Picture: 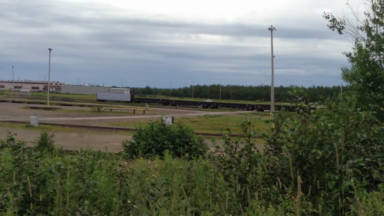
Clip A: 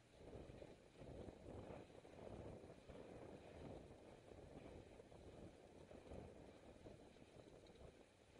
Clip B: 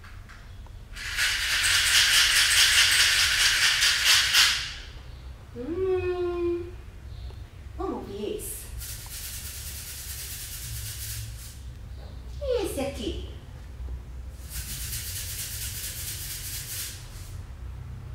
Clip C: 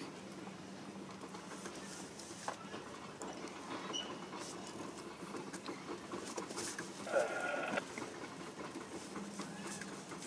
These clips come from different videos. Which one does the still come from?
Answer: C